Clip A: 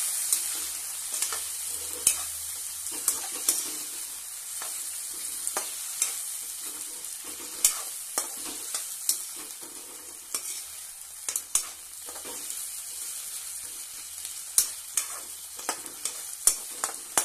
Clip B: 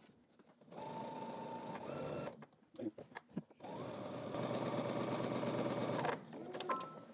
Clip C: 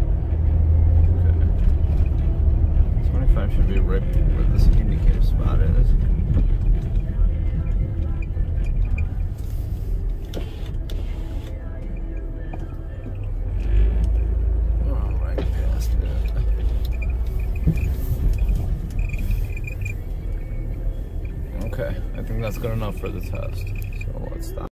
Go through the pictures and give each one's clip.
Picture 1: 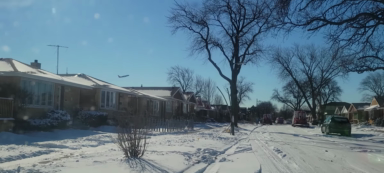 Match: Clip C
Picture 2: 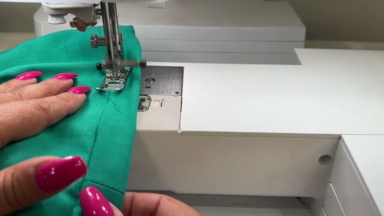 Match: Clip B